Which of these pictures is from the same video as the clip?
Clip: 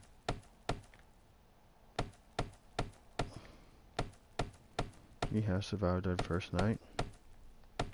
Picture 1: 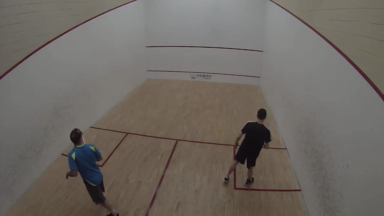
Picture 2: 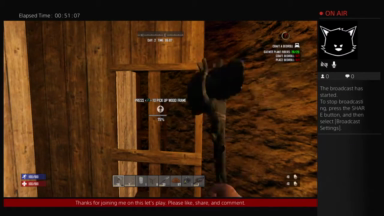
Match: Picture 2